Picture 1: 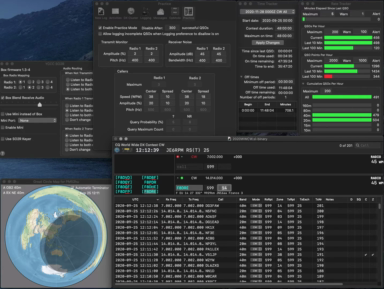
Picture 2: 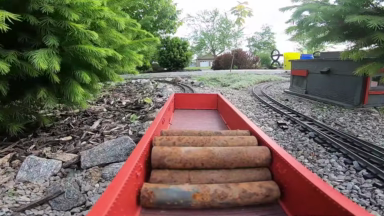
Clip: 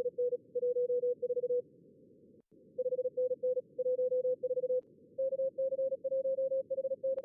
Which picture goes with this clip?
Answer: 1